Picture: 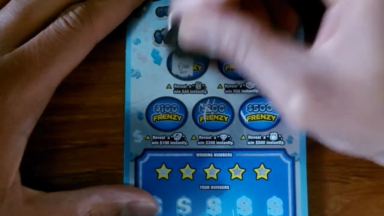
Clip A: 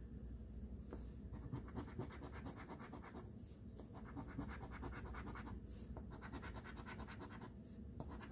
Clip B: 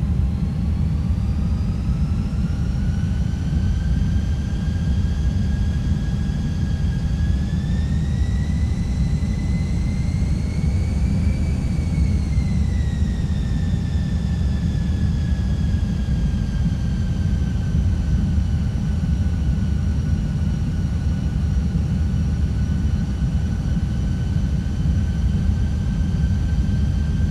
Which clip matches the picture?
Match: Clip A